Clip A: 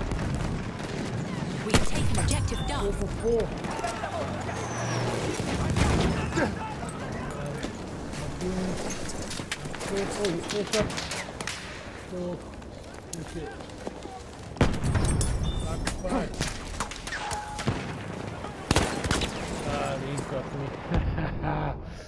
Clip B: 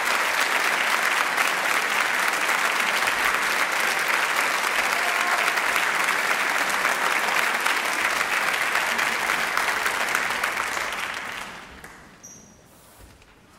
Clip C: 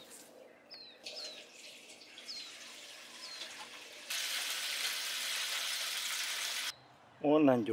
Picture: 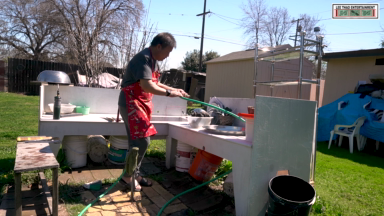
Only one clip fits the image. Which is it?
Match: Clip C